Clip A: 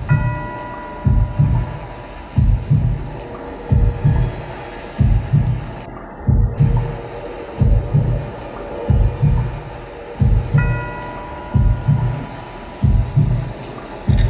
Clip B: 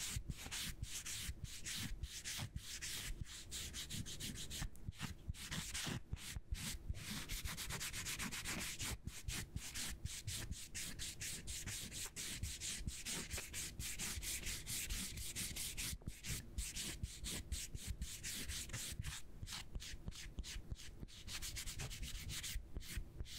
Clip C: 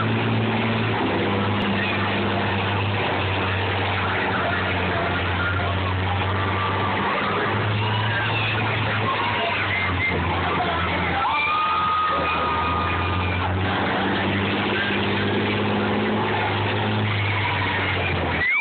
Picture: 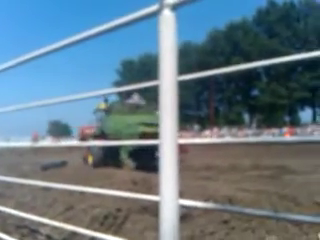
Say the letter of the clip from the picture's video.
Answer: C